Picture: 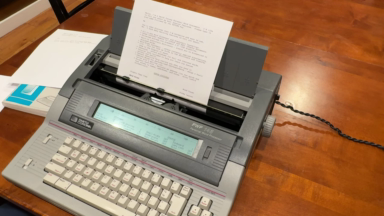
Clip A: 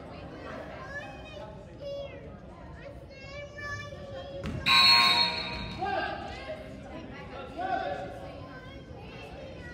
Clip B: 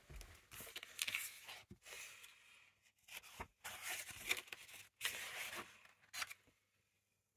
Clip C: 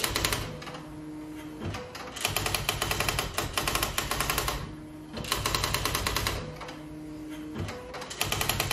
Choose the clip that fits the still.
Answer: C